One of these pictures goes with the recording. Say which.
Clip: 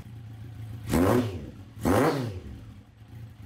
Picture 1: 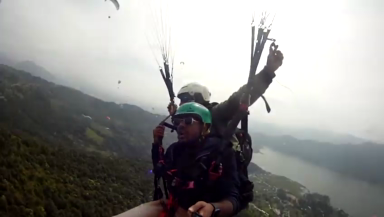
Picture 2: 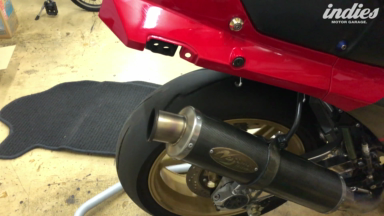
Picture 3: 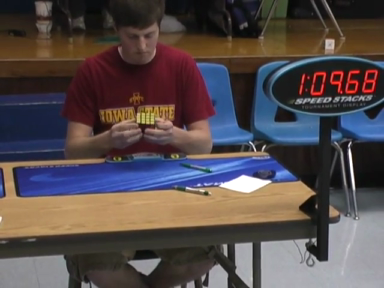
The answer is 2